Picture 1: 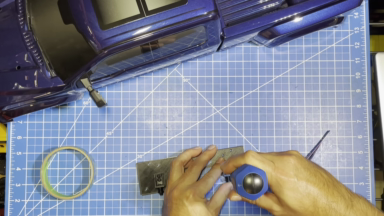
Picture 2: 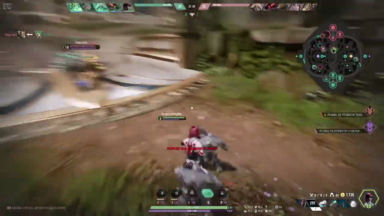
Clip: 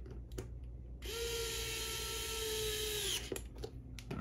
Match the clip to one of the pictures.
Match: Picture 1